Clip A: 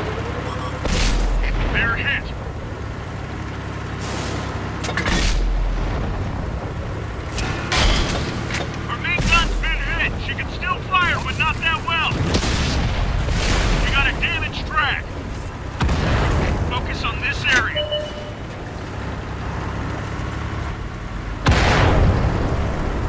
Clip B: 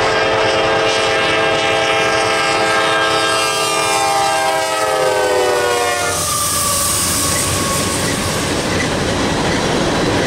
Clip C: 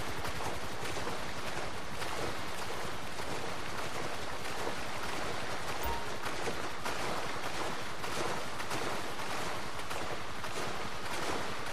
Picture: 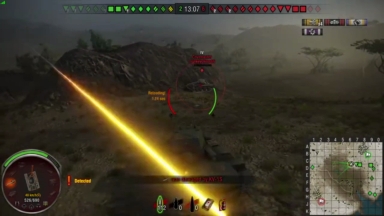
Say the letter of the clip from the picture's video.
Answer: A